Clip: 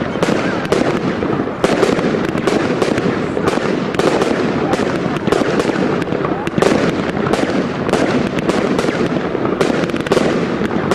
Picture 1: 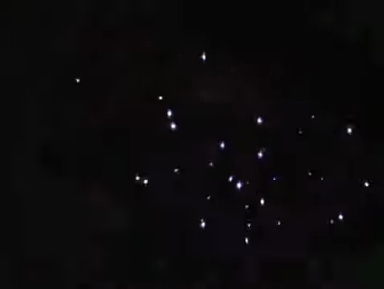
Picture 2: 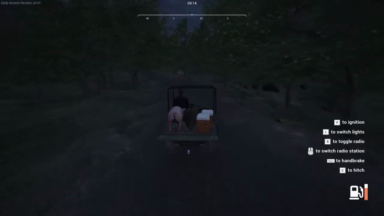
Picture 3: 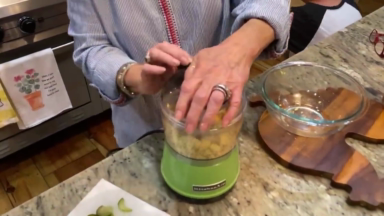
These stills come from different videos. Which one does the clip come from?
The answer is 1